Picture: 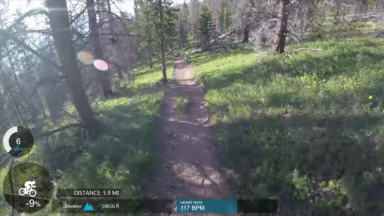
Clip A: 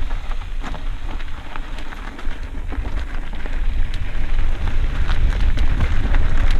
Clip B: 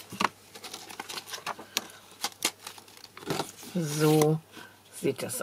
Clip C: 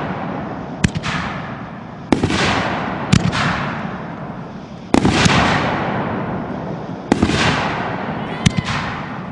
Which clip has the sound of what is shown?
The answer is A